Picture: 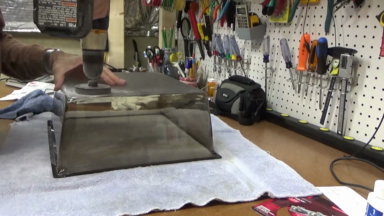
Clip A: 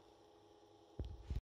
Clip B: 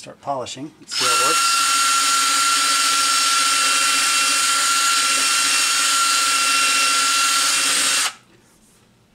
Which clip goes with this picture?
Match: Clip B